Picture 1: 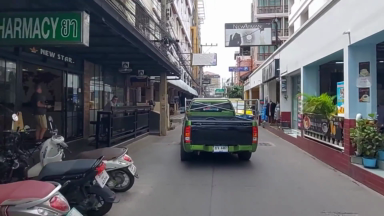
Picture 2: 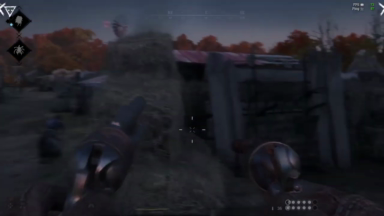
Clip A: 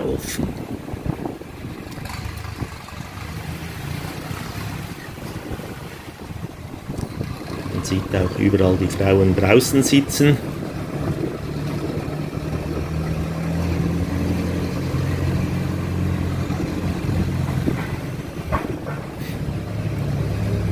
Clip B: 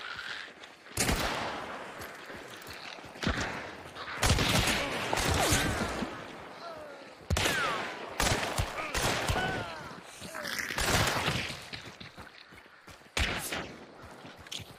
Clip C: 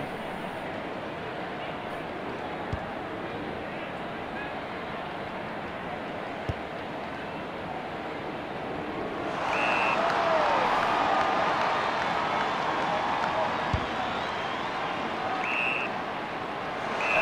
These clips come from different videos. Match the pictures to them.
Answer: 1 A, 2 B